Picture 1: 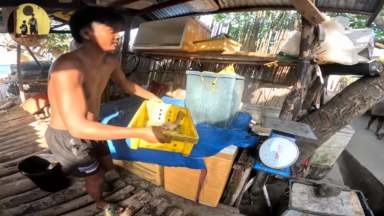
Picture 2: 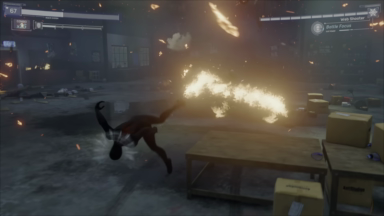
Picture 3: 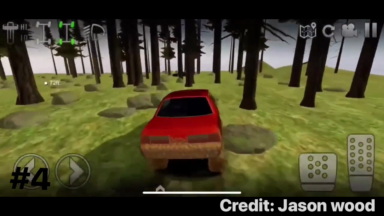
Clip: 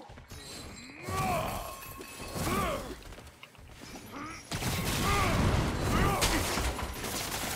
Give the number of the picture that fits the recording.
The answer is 2